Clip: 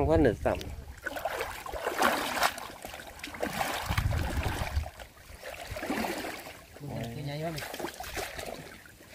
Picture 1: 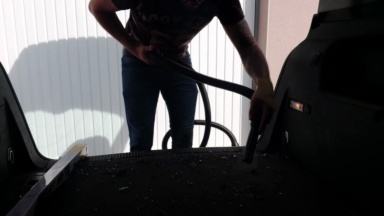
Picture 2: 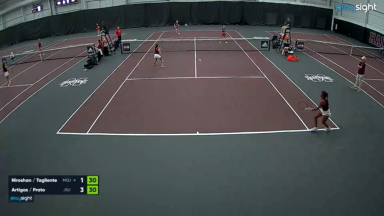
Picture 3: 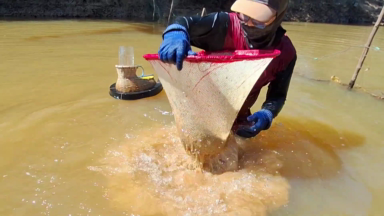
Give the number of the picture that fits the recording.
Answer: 3